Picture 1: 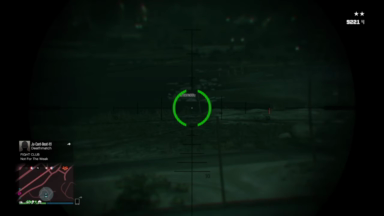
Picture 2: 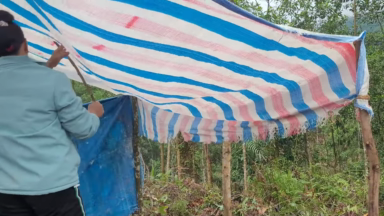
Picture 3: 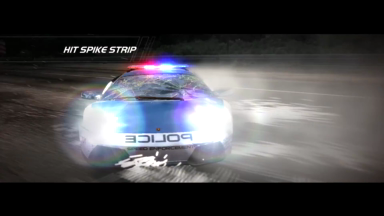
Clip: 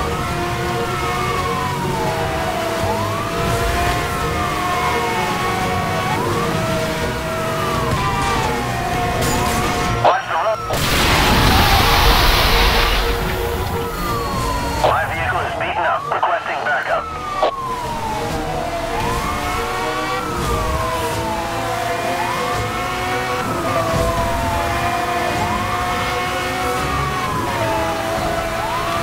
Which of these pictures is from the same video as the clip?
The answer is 3